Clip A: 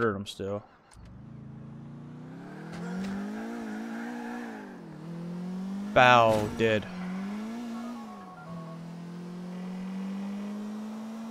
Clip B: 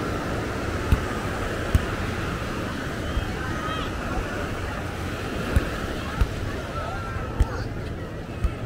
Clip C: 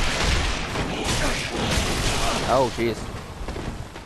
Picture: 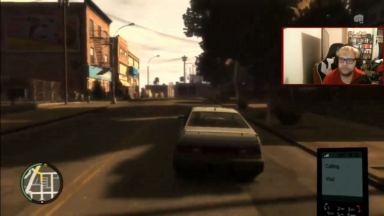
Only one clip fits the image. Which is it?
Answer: A